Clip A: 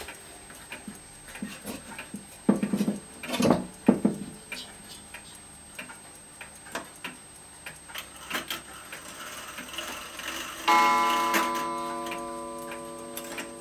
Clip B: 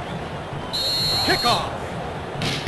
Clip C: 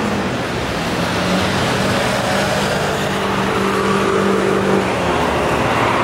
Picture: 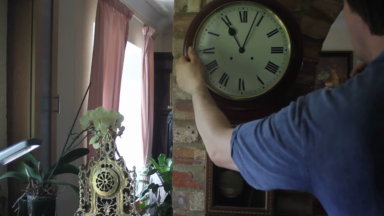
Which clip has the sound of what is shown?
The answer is A